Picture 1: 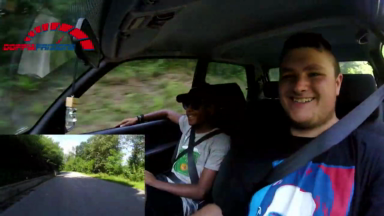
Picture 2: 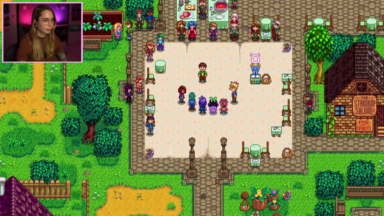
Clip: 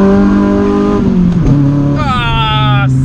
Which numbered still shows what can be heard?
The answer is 1